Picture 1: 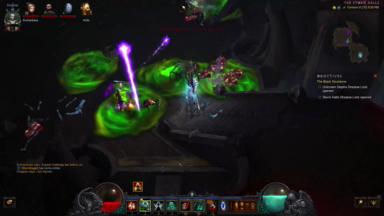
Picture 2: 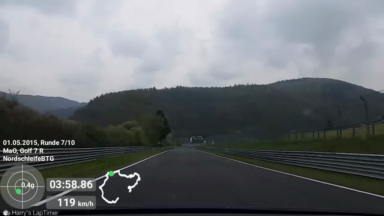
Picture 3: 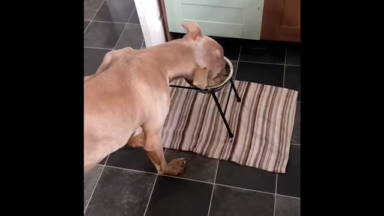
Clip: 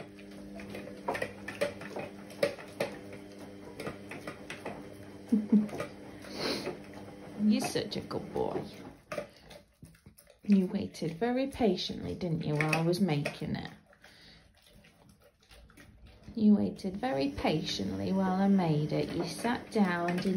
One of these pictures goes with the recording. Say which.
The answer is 3